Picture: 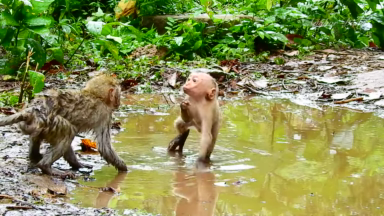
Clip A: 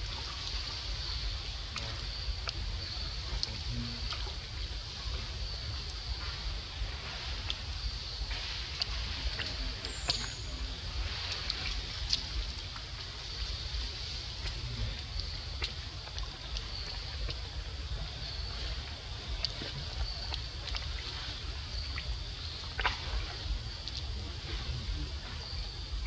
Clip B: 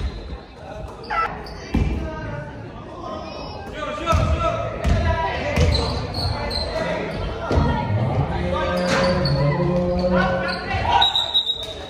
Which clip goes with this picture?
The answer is A